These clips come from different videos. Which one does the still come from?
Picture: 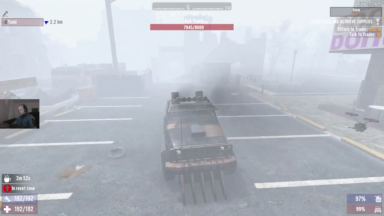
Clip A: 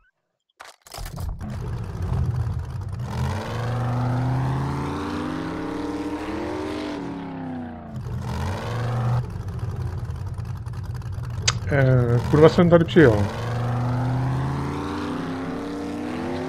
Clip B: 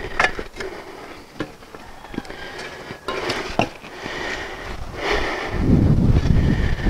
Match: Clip A